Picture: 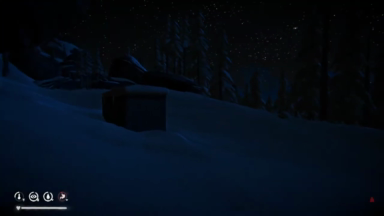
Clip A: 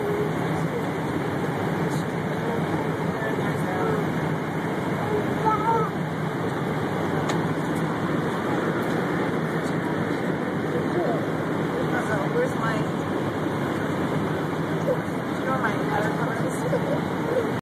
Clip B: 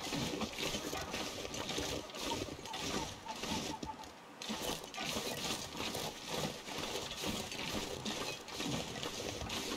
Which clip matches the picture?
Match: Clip B